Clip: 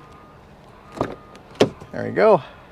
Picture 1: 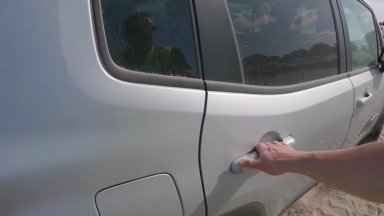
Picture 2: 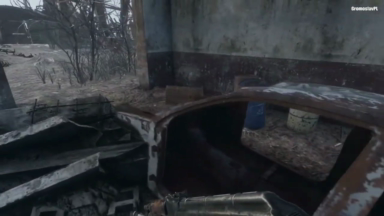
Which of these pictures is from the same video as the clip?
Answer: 1